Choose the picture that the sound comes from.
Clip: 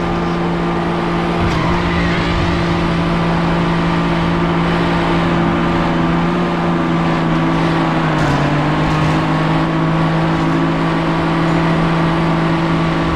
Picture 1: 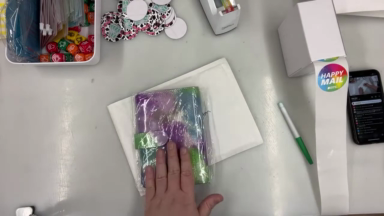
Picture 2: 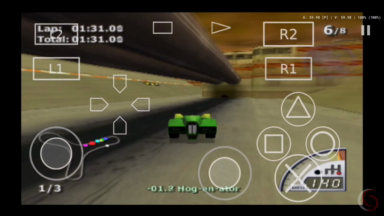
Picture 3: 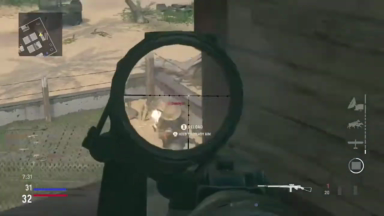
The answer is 2